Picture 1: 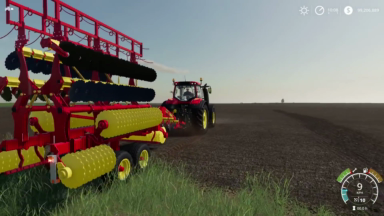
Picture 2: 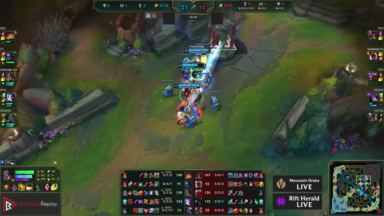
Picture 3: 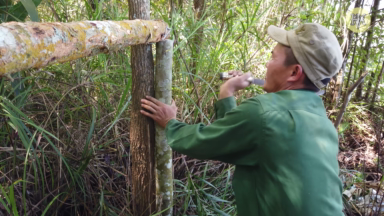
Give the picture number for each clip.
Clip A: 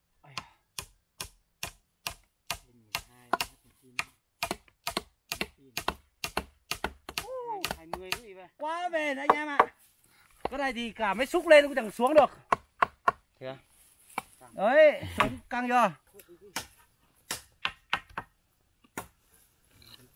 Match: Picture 3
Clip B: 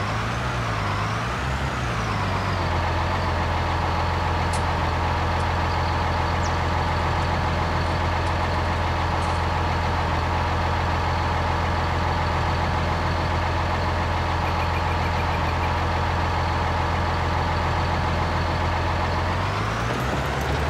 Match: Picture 1